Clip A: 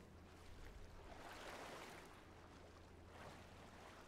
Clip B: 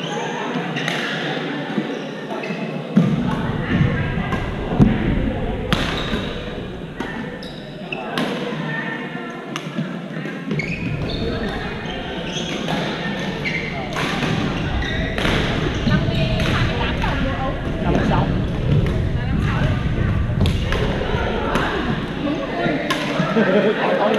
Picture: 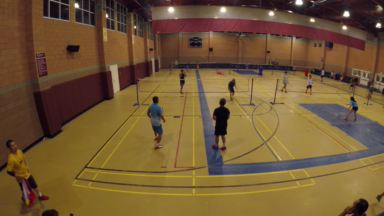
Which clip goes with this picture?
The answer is B